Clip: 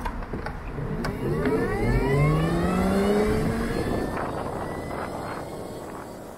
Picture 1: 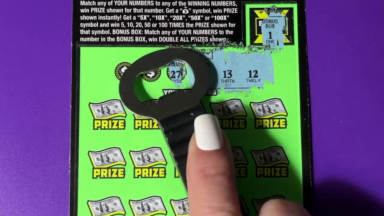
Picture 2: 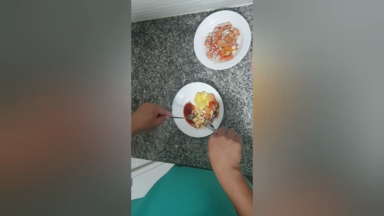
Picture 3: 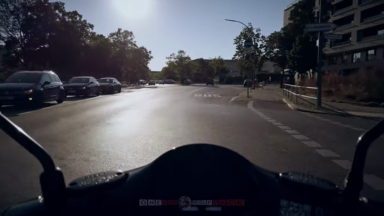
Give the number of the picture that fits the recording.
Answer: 3